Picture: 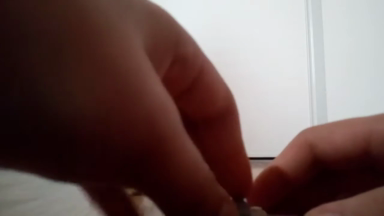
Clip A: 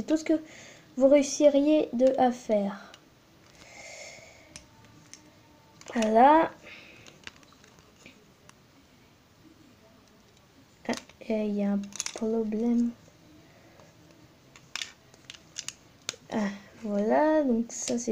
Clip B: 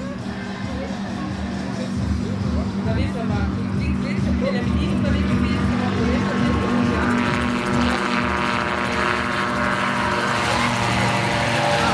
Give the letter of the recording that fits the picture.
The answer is A